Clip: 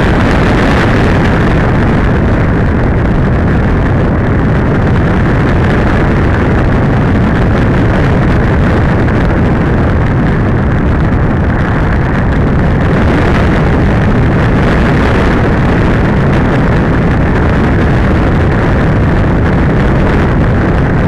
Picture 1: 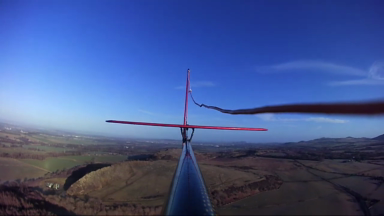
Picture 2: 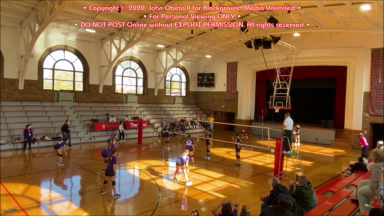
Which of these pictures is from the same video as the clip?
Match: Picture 1